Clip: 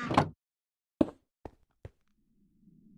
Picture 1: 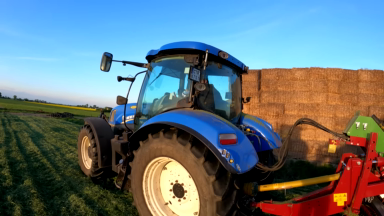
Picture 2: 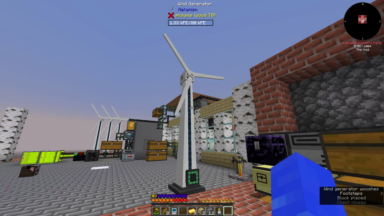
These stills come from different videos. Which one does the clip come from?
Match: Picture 2